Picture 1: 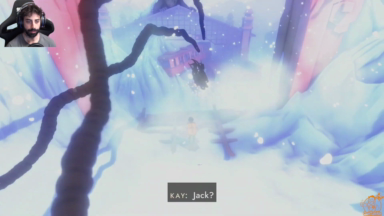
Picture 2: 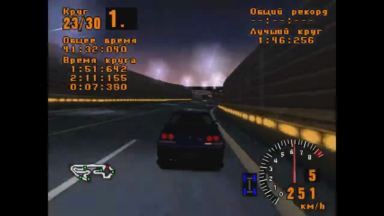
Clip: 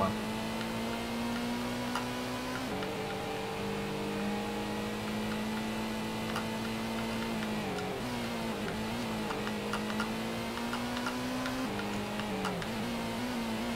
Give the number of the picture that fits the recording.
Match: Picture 2